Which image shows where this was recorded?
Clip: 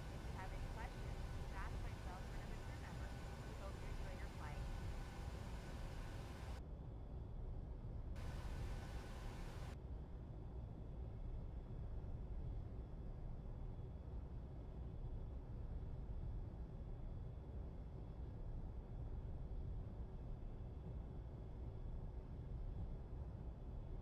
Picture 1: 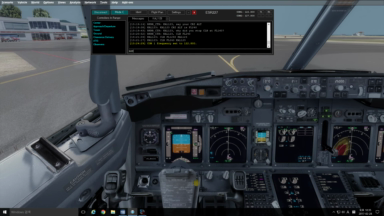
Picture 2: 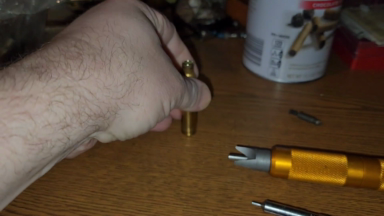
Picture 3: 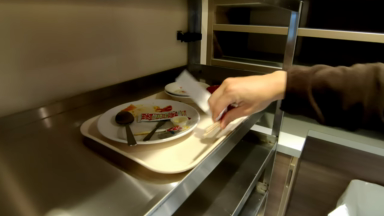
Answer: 1